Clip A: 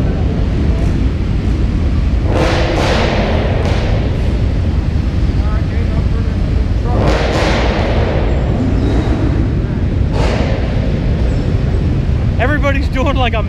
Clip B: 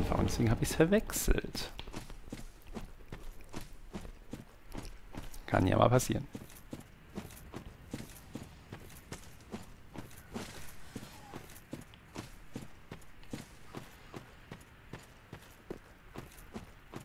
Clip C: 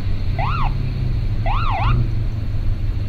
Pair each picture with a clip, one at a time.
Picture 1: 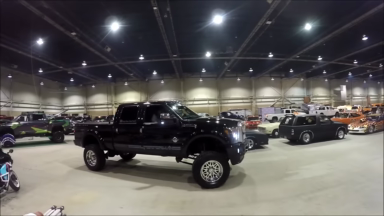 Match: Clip A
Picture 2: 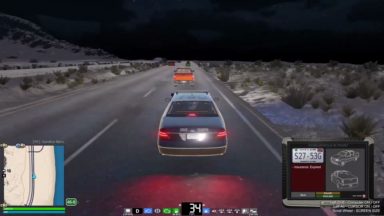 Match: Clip C